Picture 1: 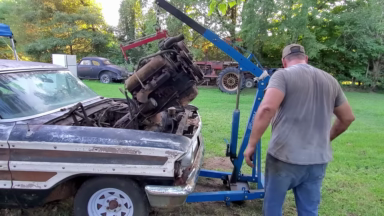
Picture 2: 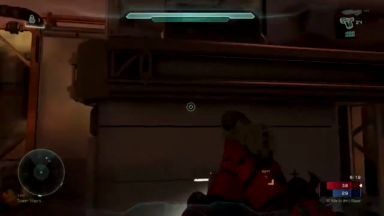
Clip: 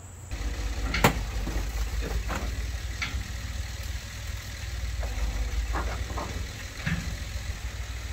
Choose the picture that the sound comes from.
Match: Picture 1